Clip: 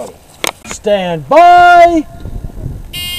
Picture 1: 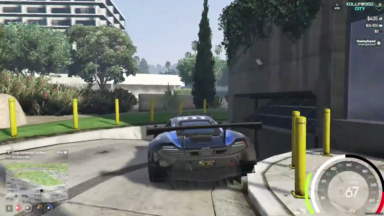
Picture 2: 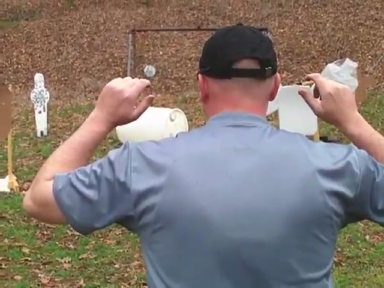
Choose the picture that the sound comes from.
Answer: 2